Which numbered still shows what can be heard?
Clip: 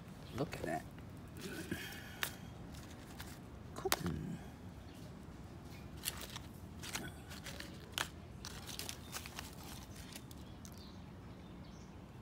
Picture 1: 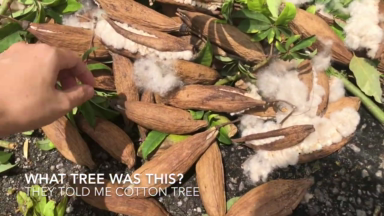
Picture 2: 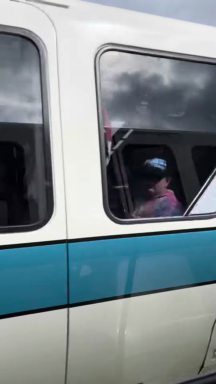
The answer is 1